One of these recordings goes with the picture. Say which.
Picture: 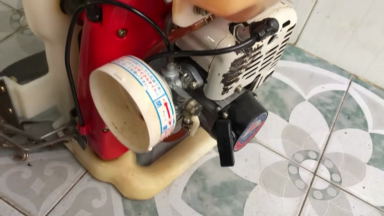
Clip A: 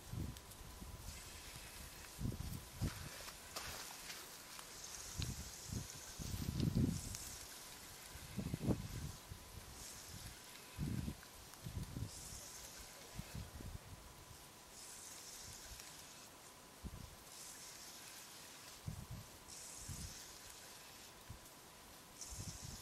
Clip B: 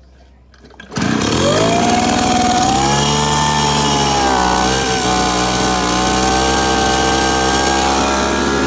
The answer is B